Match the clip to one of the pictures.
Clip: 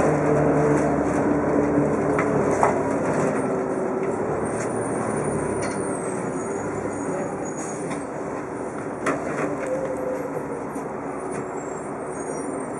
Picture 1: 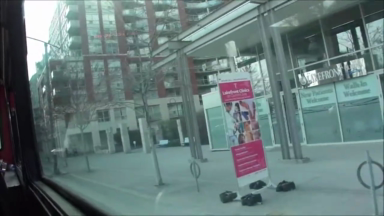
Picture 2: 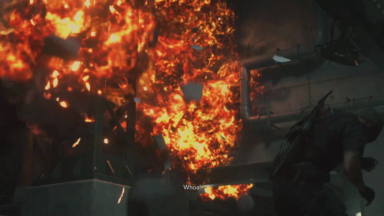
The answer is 1